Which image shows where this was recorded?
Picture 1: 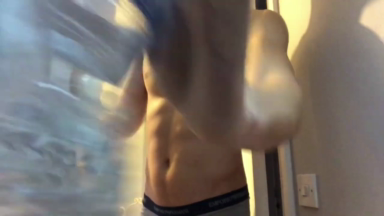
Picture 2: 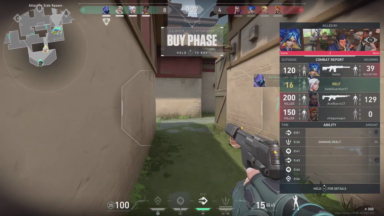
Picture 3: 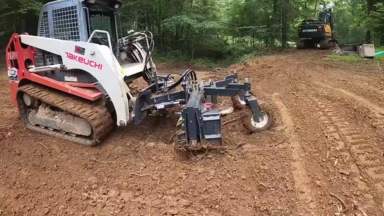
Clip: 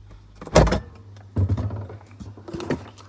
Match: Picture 1